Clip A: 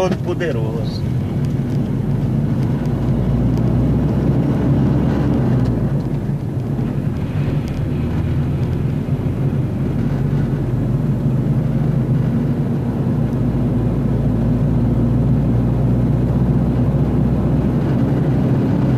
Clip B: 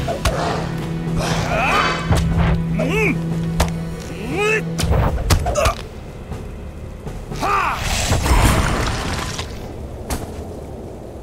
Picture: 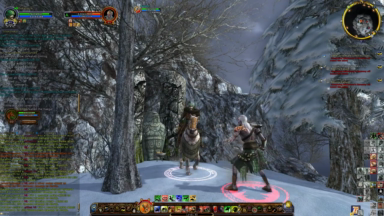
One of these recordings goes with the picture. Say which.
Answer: B